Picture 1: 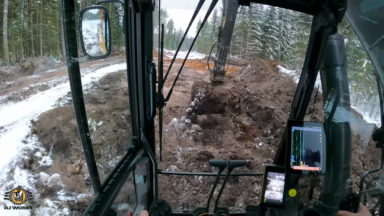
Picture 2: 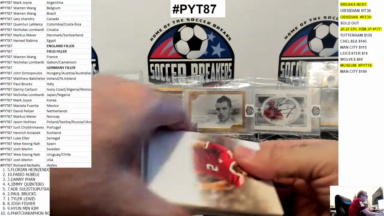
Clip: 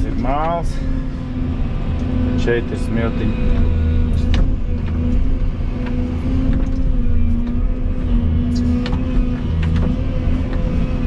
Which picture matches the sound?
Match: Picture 1